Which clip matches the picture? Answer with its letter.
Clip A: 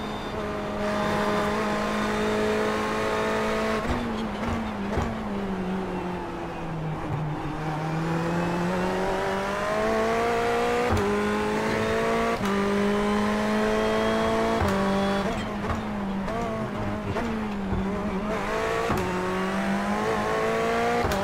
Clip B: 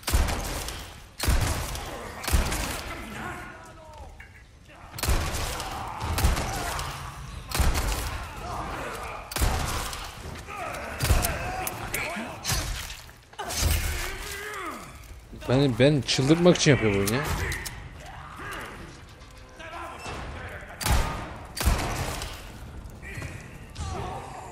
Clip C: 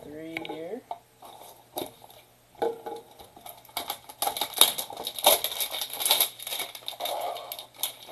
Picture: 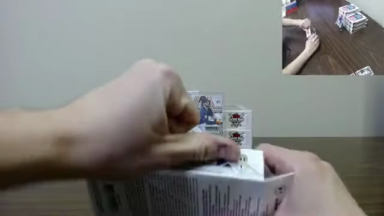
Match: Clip C